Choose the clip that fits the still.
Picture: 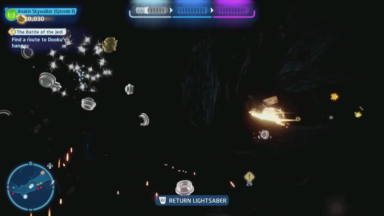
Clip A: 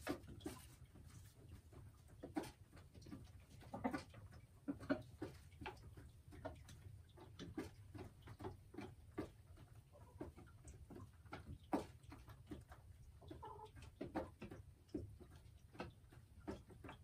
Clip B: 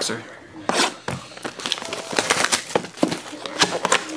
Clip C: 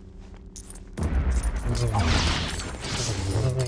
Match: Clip C